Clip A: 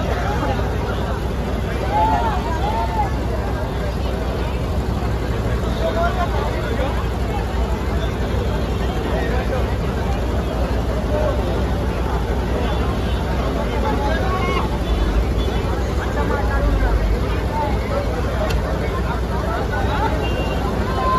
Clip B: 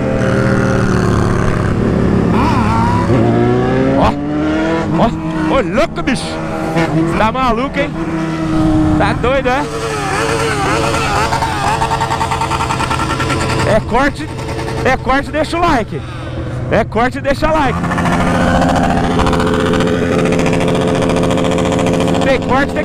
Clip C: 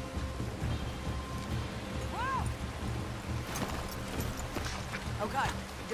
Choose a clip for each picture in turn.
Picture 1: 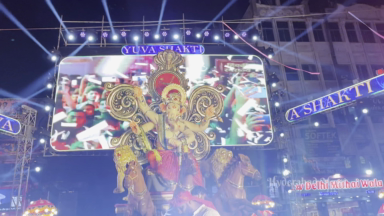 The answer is A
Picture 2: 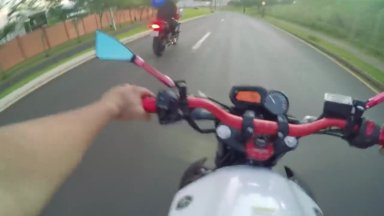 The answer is B